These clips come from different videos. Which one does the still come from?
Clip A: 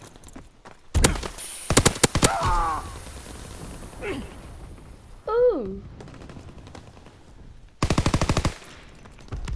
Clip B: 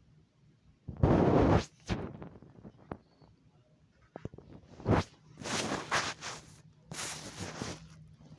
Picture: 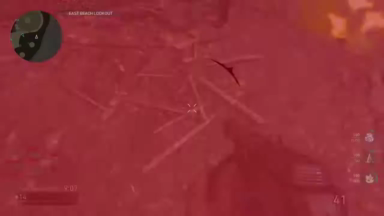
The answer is A